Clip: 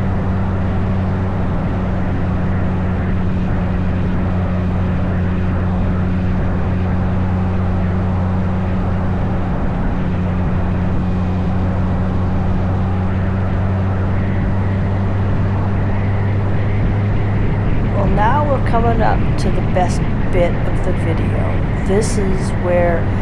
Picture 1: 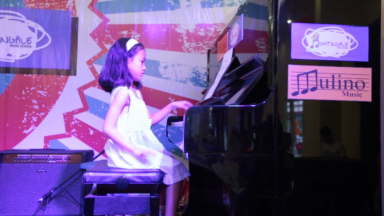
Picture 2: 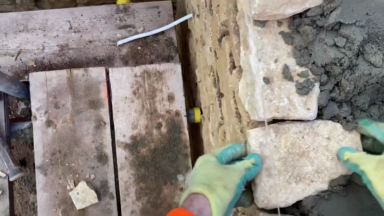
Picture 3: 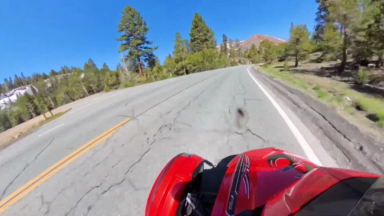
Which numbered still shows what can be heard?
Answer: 3